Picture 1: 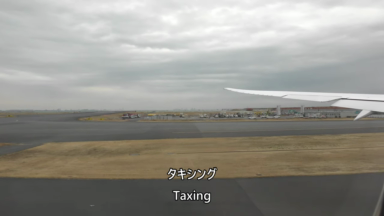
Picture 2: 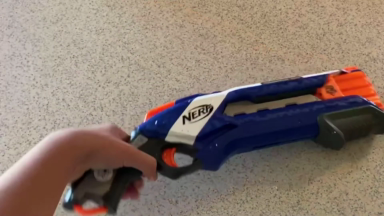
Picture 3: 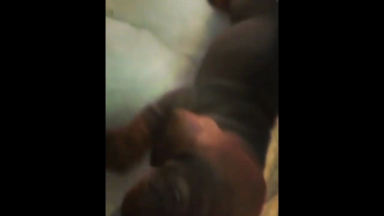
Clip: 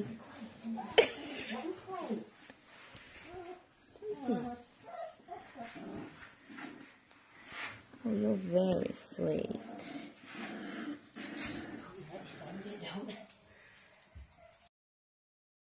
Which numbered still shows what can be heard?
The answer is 3